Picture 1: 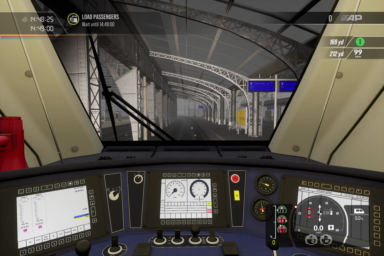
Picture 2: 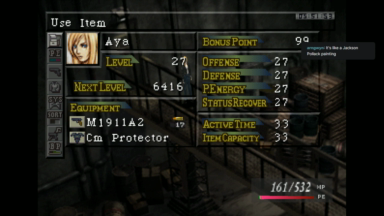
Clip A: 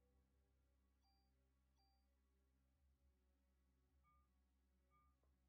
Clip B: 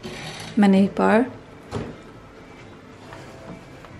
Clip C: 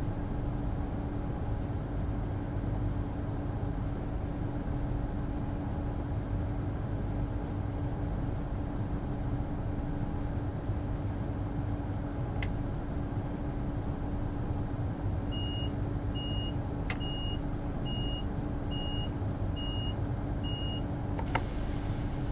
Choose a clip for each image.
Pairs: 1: C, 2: A